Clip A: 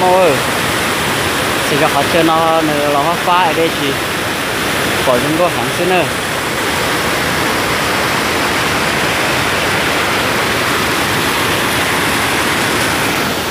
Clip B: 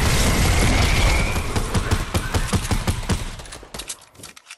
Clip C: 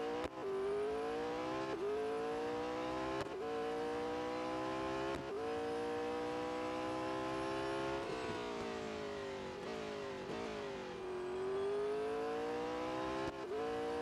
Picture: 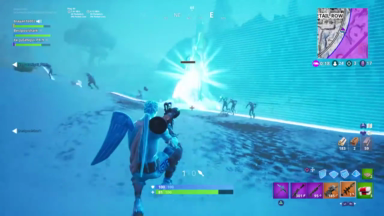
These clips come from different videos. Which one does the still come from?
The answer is B